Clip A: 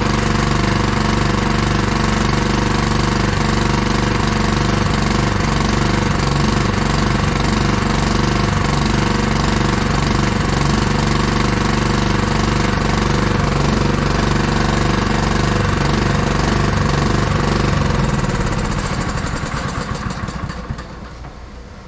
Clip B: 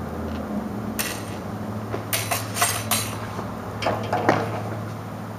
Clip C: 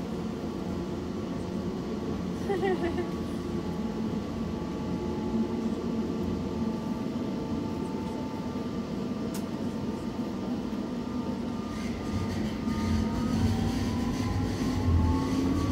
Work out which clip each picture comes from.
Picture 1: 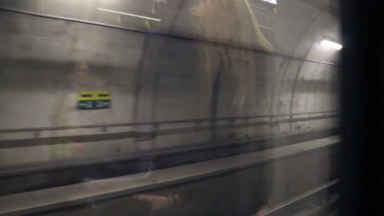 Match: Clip C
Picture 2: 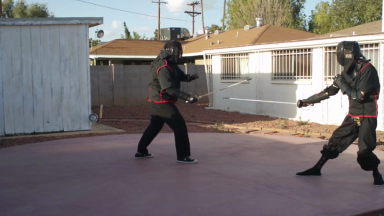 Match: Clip B